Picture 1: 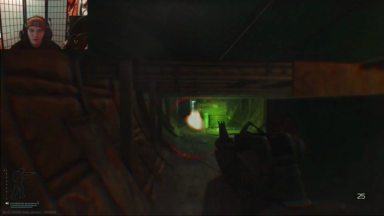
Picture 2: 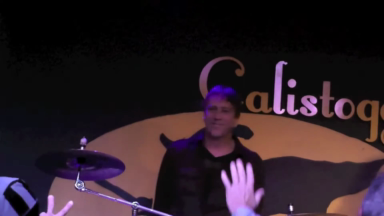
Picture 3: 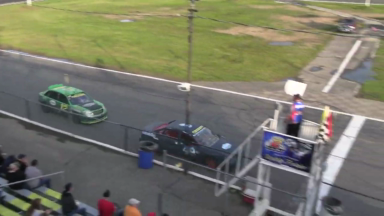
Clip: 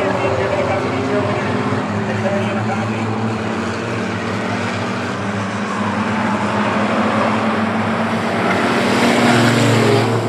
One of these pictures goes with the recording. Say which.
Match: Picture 3